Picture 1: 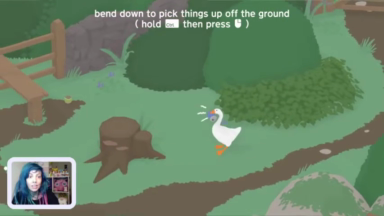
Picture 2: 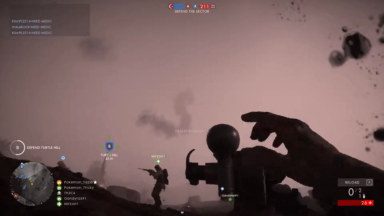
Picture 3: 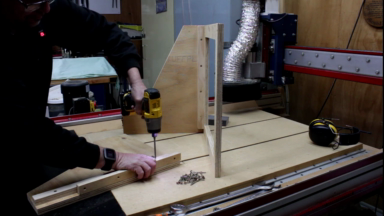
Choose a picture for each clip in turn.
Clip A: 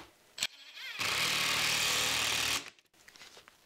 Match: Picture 3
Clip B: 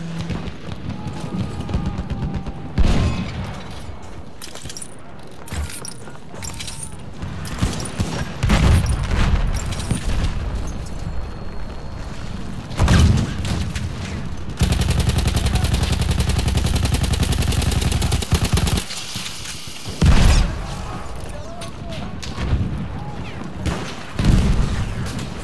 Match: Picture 2